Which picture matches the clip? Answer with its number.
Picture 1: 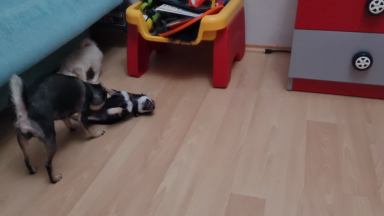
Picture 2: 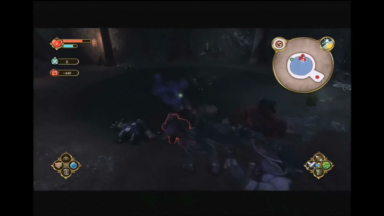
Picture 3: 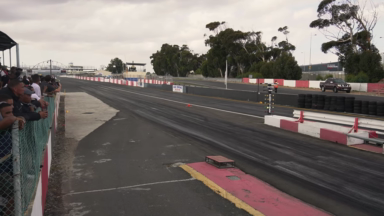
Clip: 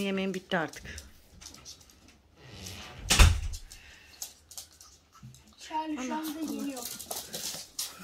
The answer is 1